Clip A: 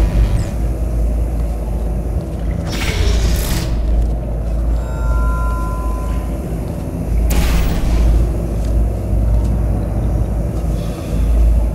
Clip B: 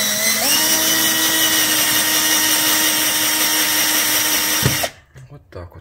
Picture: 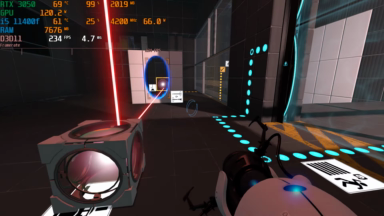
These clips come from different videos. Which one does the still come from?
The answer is A